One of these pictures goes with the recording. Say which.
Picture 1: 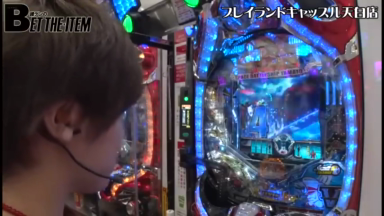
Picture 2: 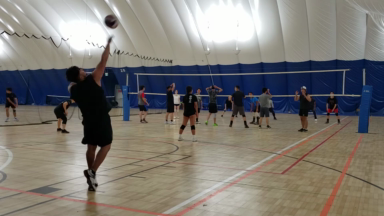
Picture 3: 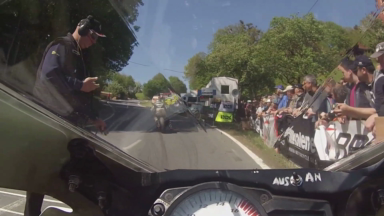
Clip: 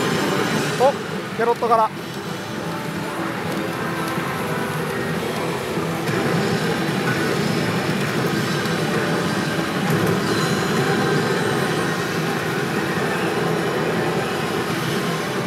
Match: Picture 1